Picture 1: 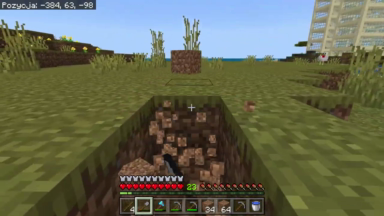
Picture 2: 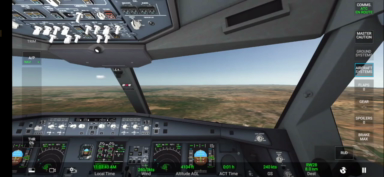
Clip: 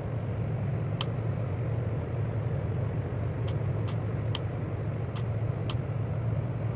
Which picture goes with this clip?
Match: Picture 2